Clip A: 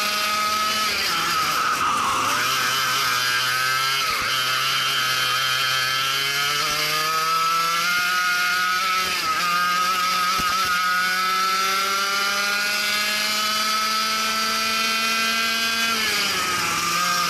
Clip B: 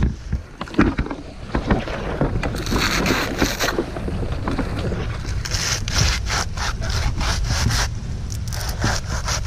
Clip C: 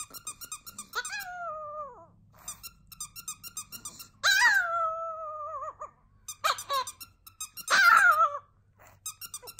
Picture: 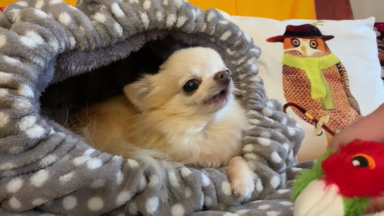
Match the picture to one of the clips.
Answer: C